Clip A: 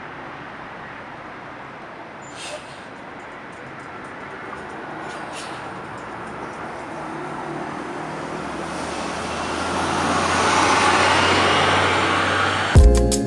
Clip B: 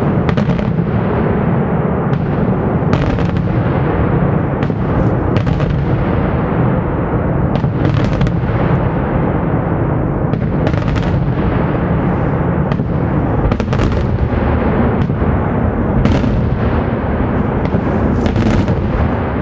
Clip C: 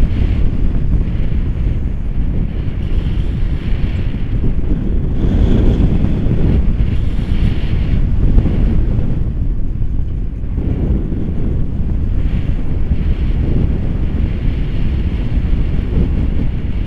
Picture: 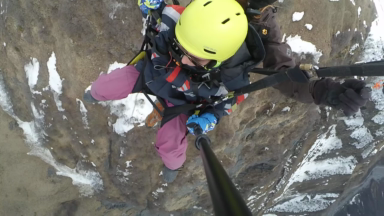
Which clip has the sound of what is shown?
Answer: C